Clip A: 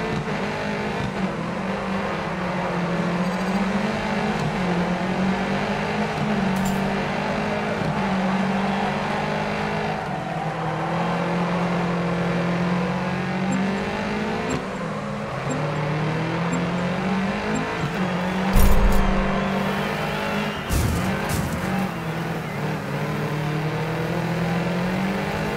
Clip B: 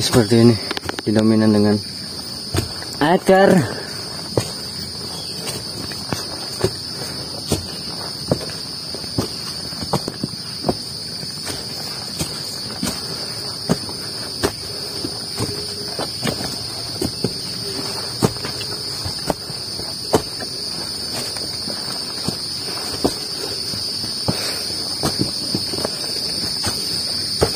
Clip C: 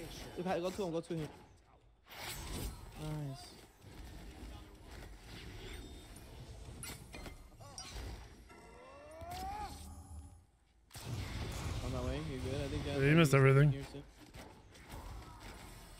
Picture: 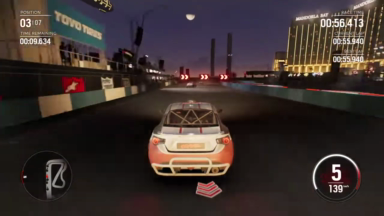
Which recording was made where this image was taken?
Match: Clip A